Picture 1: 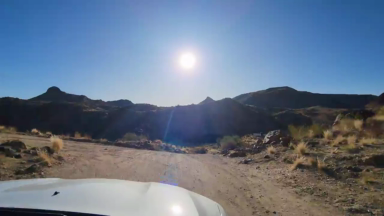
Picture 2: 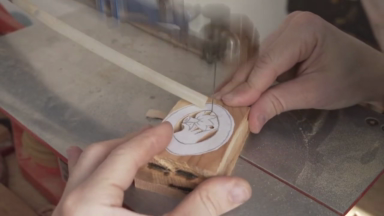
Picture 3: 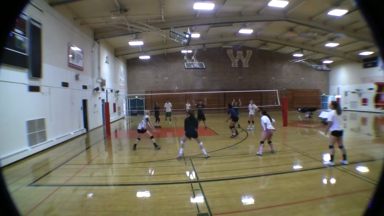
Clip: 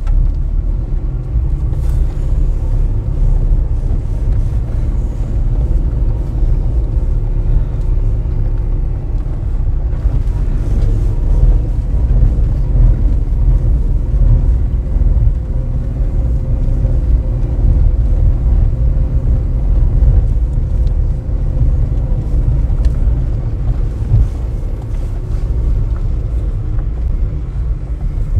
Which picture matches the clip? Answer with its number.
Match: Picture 1